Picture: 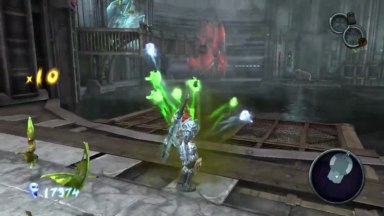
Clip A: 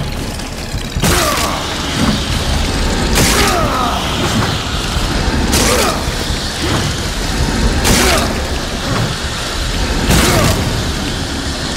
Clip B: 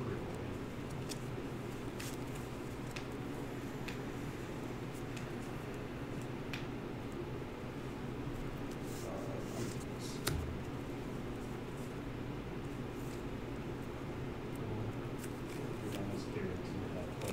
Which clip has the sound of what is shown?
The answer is A